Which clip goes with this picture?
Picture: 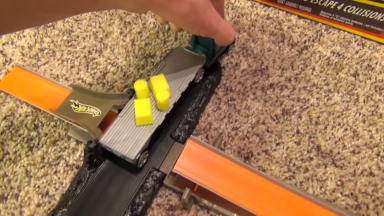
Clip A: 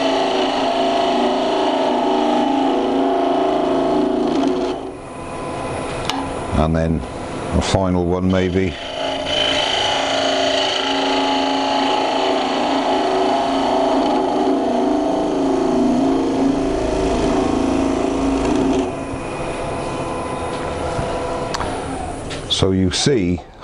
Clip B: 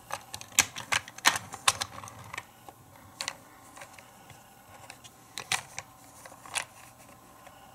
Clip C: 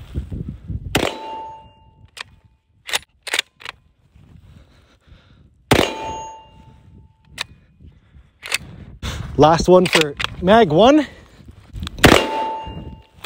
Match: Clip B